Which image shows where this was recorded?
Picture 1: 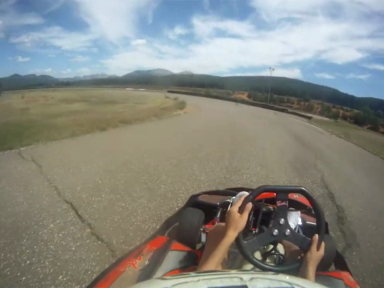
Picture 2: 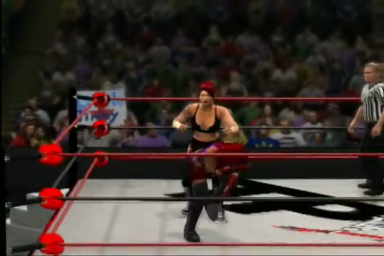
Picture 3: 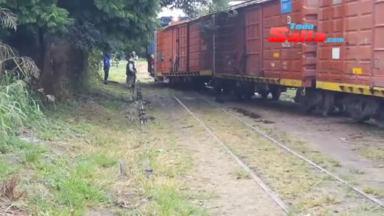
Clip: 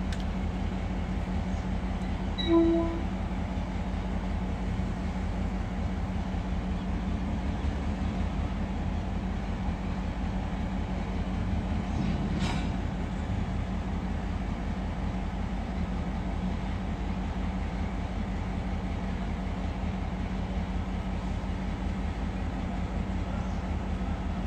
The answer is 3